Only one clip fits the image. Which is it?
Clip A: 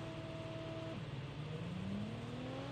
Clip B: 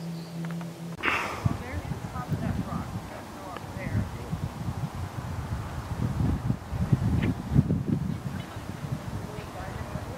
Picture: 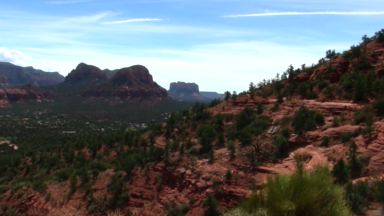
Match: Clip B